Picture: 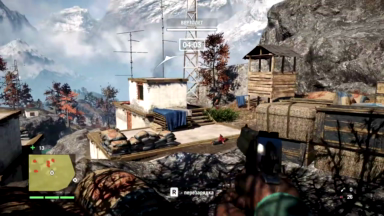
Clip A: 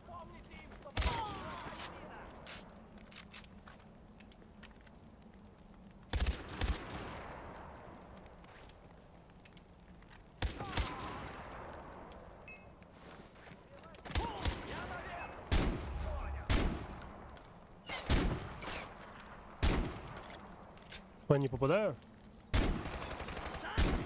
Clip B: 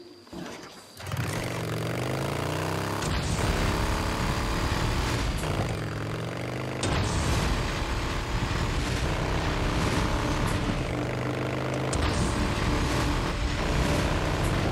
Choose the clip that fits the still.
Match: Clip A